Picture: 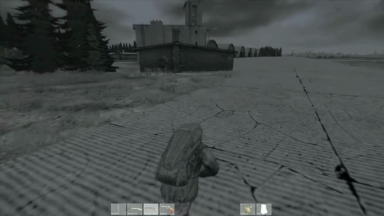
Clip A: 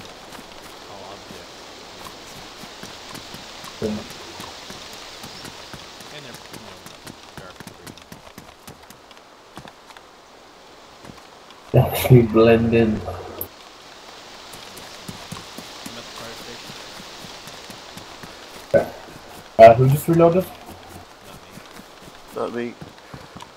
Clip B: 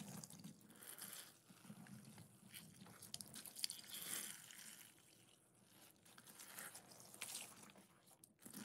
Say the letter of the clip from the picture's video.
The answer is A